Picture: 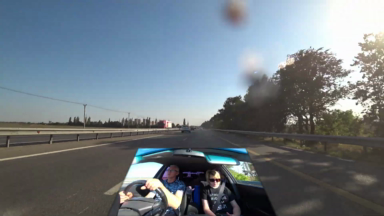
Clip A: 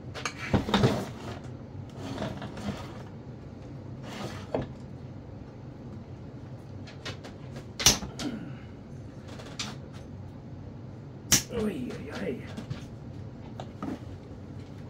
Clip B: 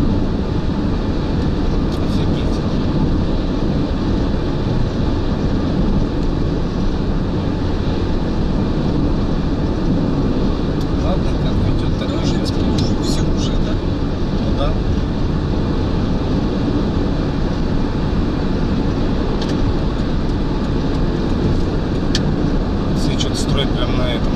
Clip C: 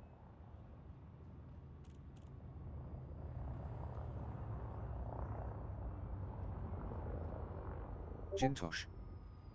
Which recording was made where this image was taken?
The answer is B